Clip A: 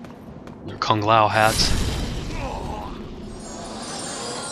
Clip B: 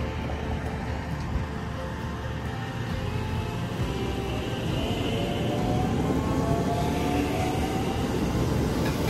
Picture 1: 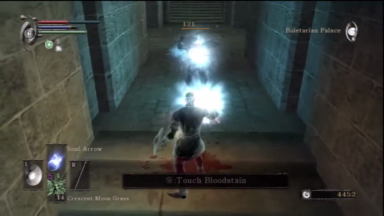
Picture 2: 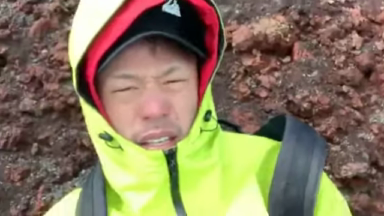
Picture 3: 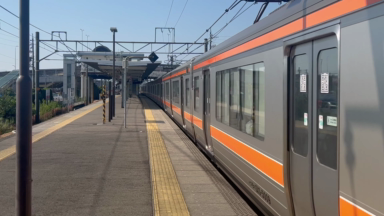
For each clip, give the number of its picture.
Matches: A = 1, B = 3